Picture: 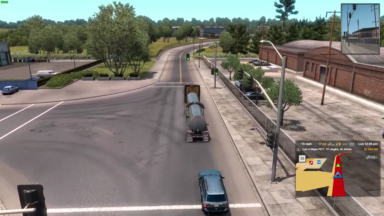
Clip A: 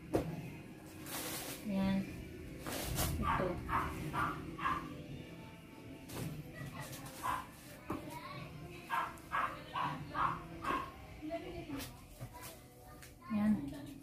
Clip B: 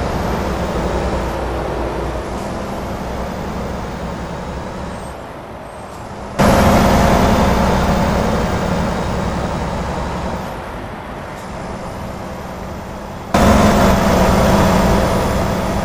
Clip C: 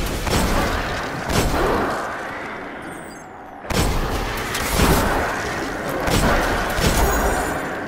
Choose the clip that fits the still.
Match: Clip B